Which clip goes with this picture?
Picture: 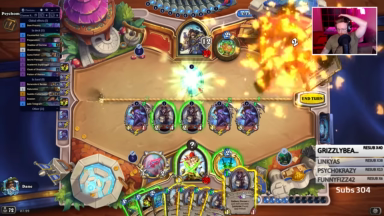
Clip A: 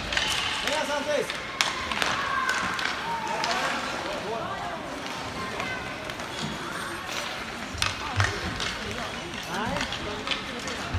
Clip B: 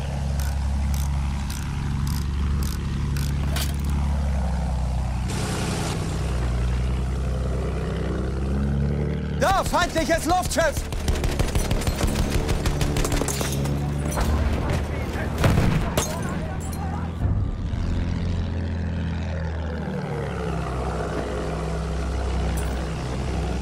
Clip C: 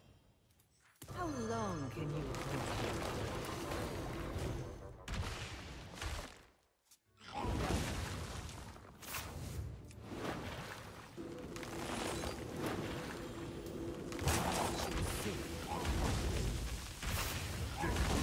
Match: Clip C